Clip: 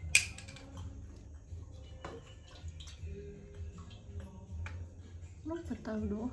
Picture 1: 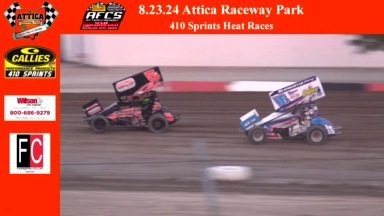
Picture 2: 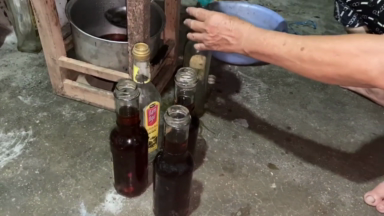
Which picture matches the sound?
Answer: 2